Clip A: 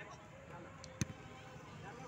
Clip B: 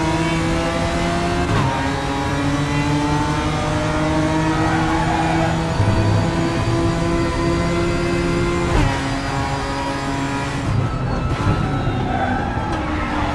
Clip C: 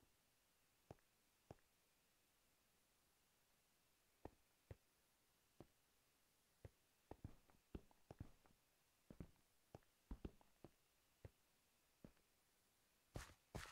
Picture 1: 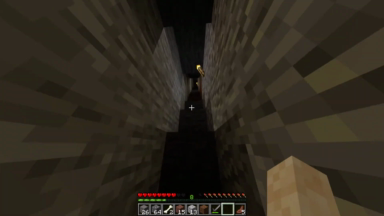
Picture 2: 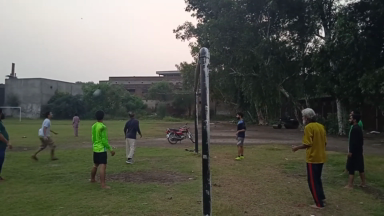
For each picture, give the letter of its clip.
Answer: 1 C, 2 A